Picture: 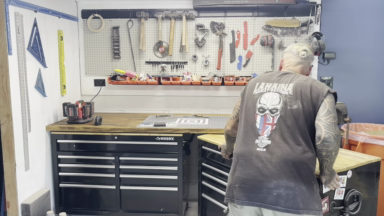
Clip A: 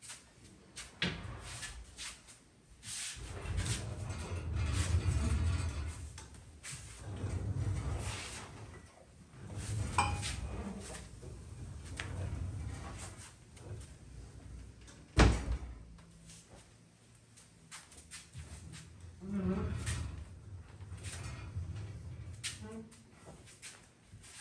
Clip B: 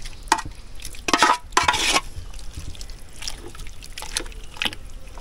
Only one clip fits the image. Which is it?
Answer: A